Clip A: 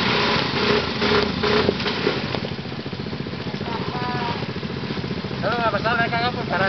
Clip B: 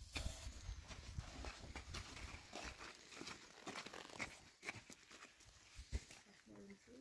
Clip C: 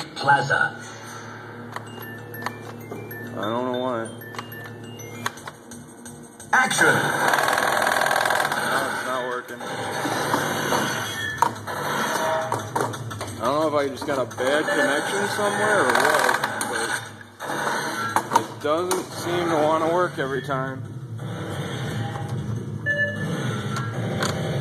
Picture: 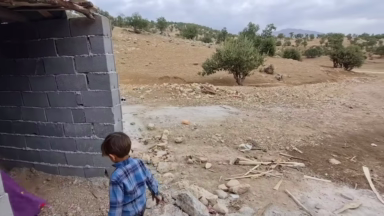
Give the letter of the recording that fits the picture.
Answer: B